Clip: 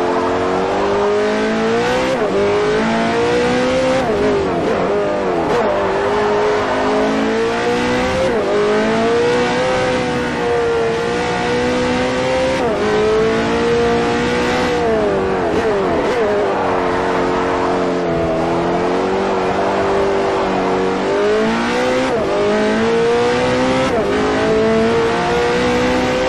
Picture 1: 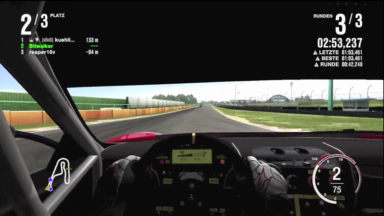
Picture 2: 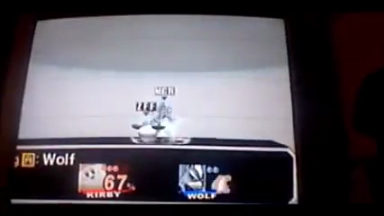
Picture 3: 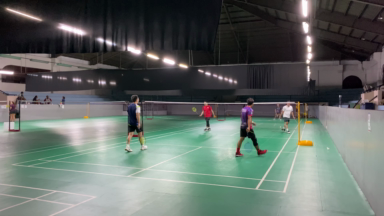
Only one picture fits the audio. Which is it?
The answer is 1